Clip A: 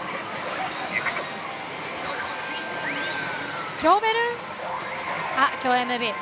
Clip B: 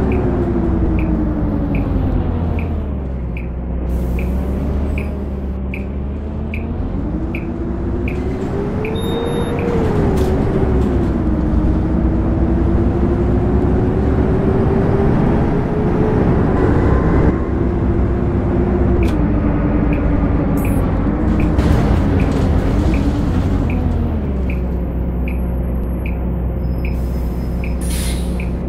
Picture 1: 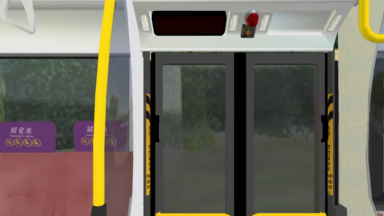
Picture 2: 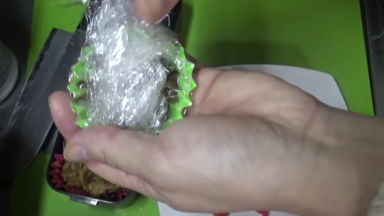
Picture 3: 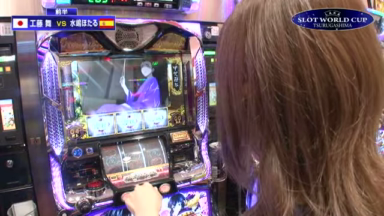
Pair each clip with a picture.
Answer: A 3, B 1